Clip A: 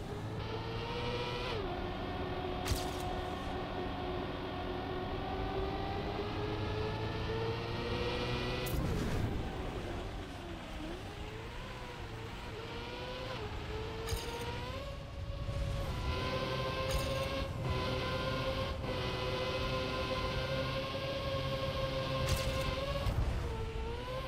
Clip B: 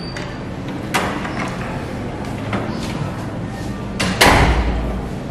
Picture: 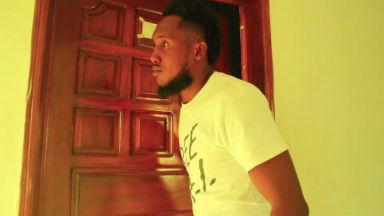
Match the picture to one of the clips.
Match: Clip B